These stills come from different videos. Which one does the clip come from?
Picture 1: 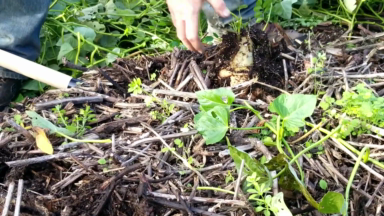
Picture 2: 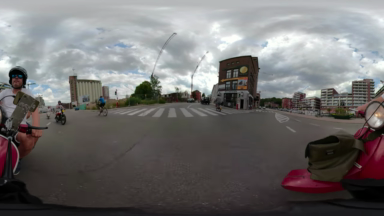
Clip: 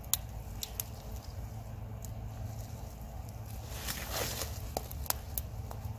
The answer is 1